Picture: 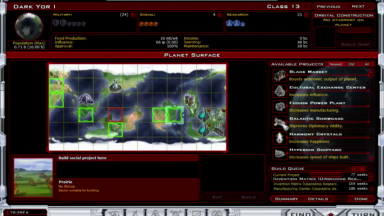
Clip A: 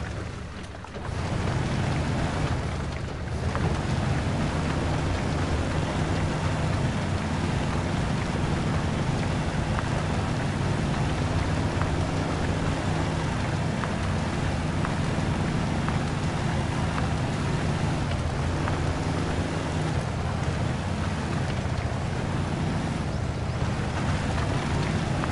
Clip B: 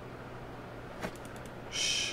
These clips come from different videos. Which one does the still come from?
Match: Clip B